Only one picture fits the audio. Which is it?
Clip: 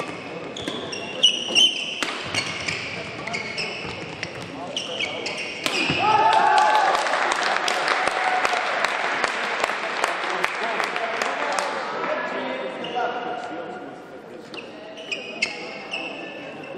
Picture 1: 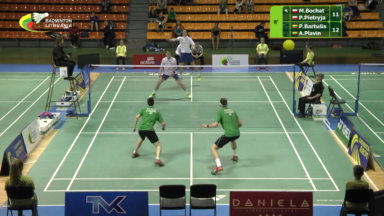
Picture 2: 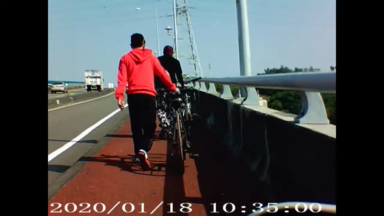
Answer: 1